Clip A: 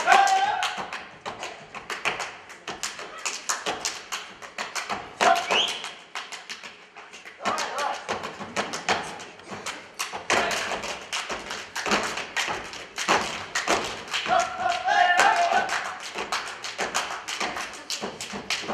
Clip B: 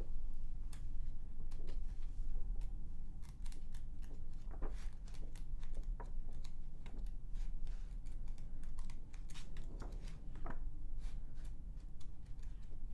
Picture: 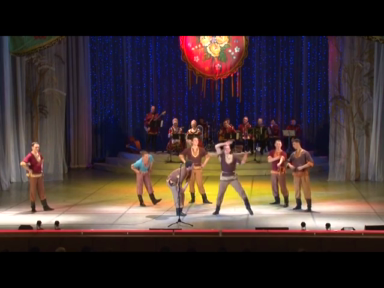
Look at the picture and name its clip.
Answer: A